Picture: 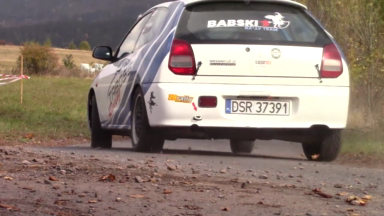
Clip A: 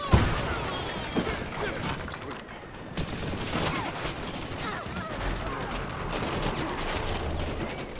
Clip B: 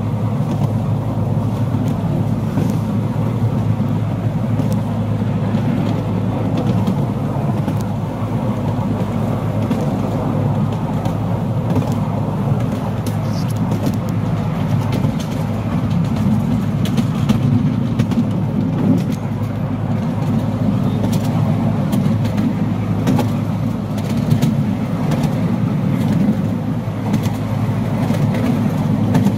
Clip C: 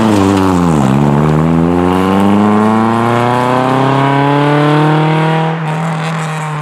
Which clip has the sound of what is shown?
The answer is C